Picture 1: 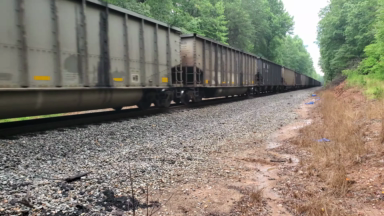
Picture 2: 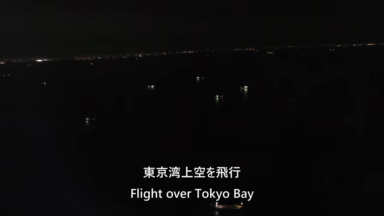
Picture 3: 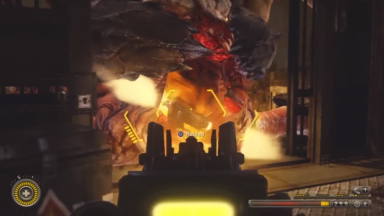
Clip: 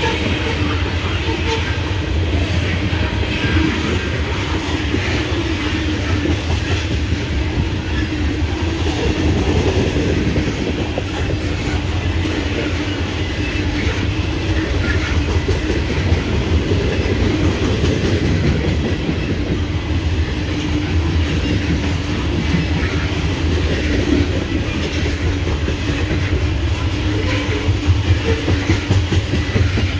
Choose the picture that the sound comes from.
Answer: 1